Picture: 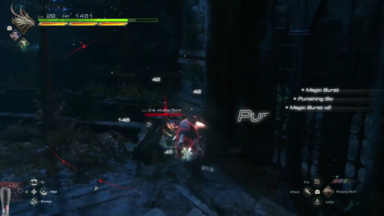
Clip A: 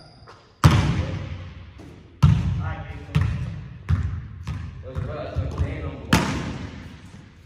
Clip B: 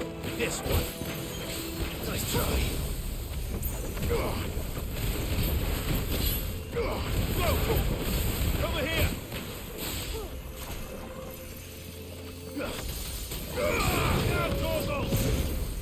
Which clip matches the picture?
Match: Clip B